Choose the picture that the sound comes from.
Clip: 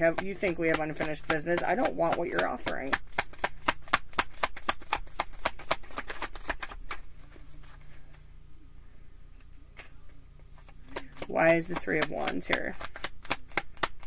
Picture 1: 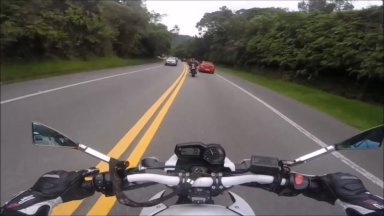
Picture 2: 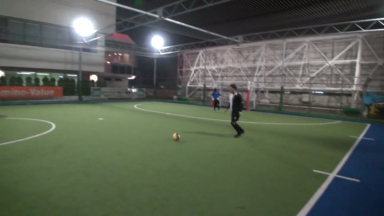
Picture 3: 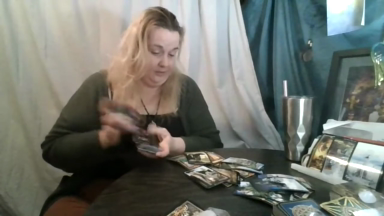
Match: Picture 3